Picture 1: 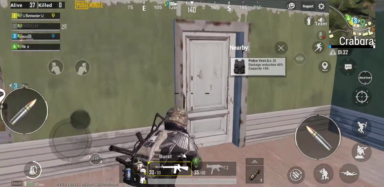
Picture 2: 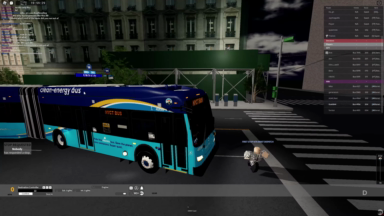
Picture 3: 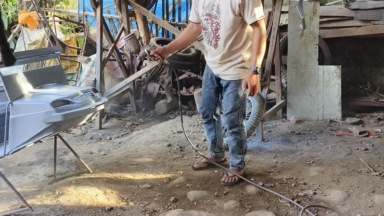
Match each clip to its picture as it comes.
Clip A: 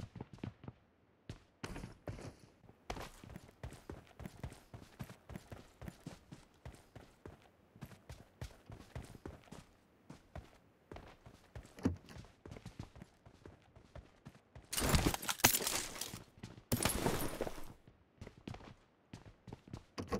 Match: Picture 1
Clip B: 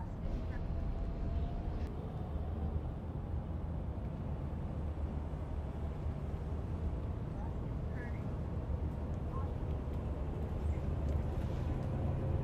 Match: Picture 2